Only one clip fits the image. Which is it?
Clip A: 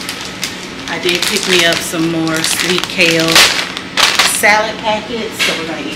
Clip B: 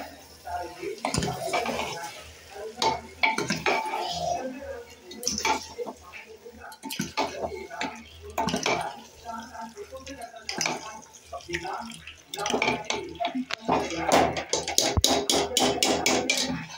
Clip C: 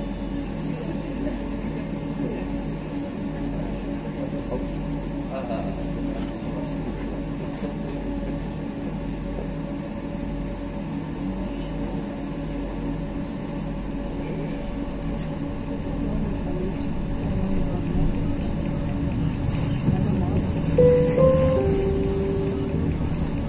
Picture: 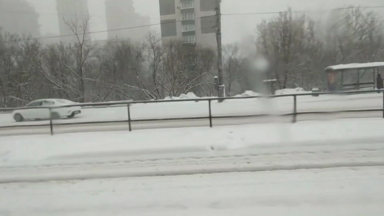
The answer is C